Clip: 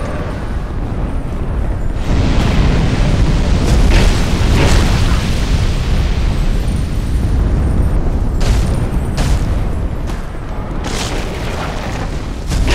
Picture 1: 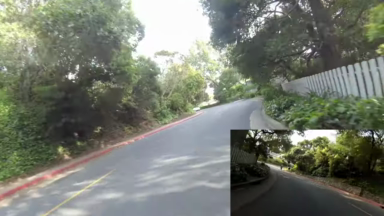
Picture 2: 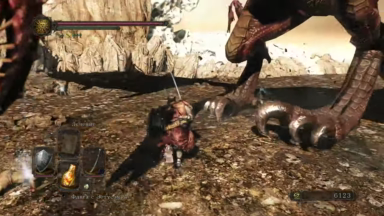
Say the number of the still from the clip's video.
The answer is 2